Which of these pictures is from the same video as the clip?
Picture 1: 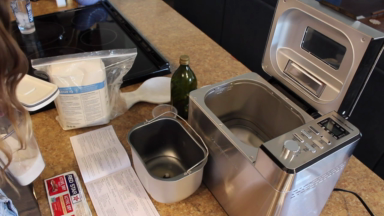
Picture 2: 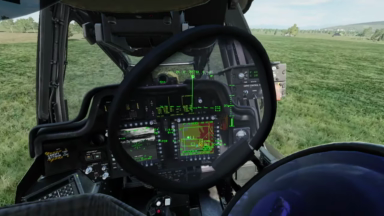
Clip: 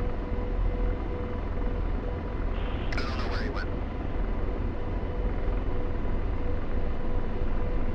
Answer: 2